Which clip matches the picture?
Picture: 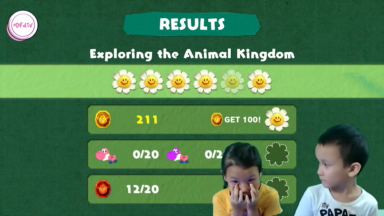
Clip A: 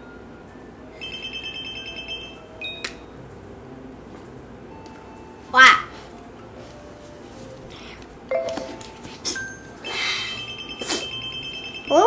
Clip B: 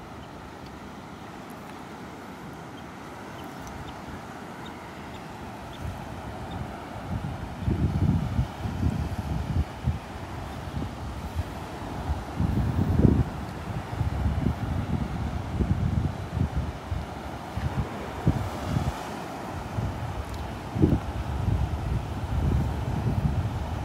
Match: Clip A